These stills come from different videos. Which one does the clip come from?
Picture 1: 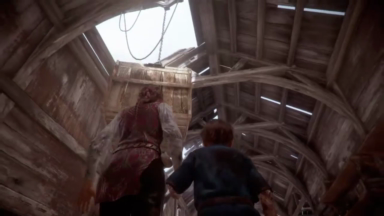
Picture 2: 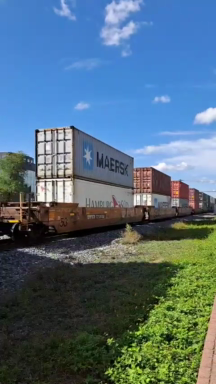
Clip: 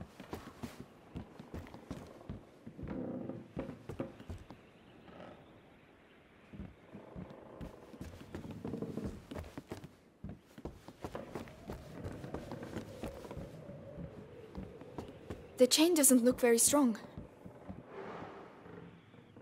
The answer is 1